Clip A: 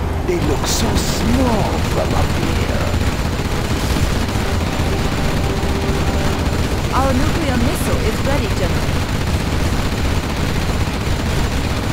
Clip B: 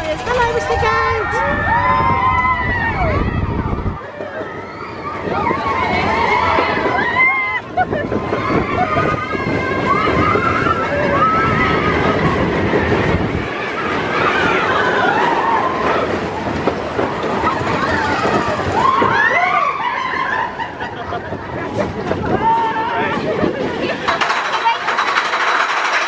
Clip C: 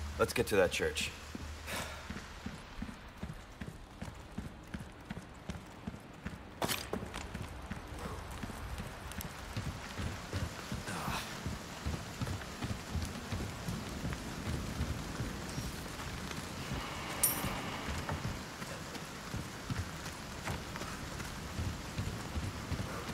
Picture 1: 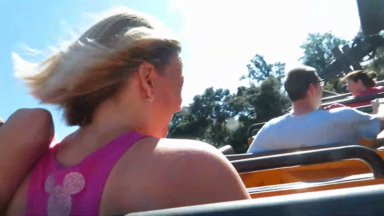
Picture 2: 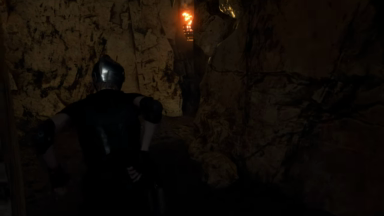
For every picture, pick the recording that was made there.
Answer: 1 B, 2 C